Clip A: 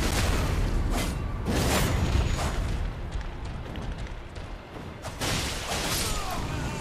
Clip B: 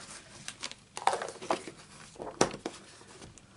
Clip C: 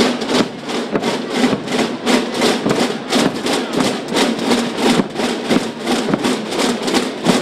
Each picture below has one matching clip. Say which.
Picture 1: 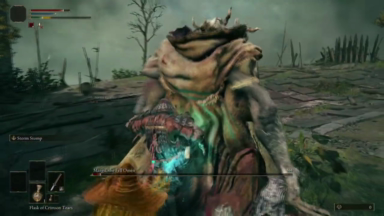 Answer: A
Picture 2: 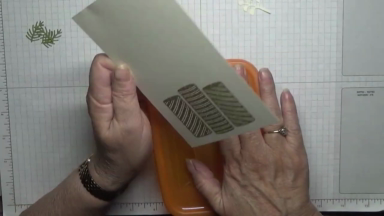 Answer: B